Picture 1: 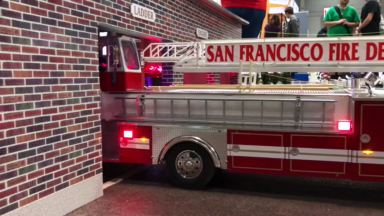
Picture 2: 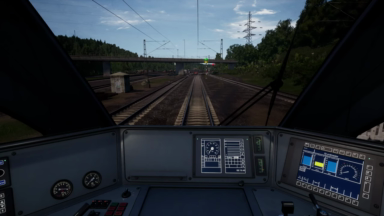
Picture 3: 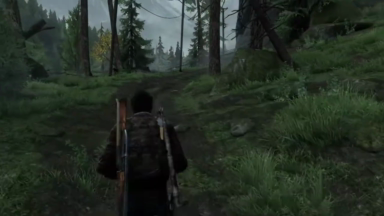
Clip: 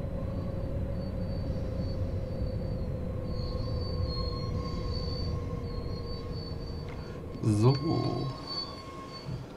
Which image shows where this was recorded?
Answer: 2